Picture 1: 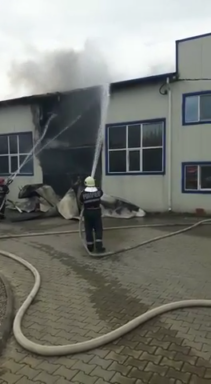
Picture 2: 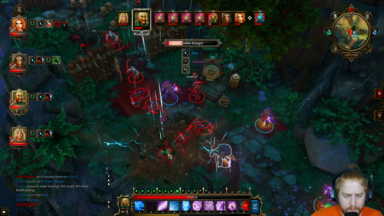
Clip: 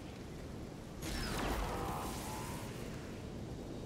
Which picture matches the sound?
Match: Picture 2